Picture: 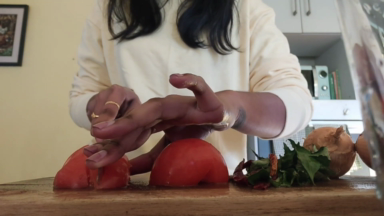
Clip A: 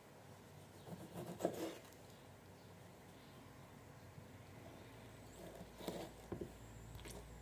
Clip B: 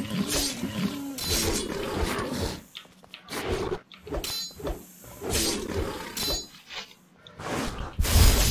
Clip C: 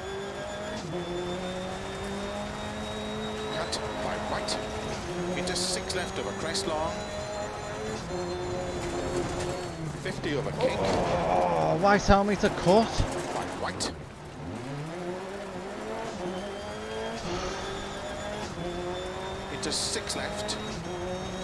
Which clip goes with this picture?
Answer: A